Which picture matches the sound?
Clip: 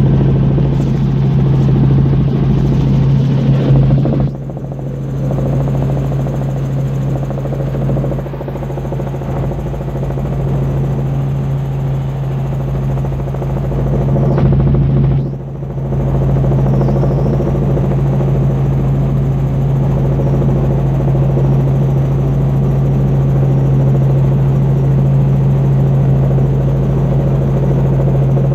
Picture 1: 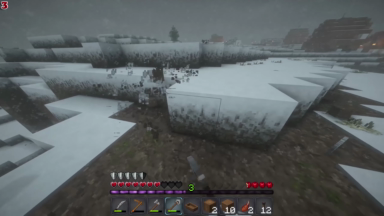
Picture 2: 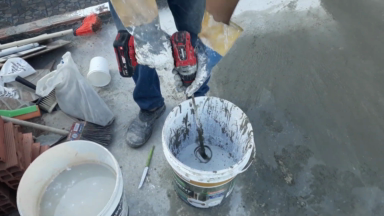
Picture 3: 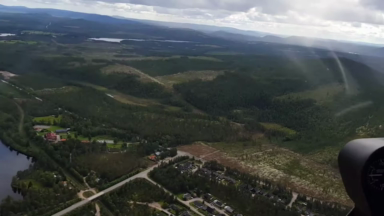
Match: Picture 3